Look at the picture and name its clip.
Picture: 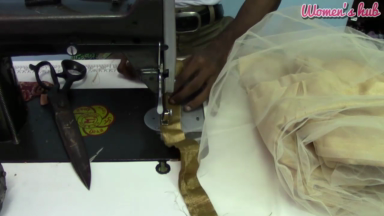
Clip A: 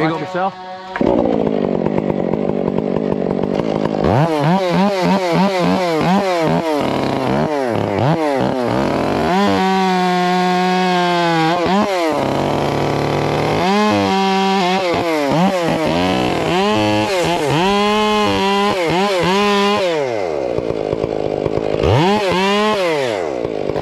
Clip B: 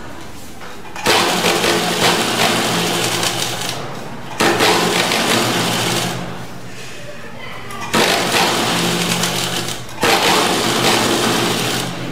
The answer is B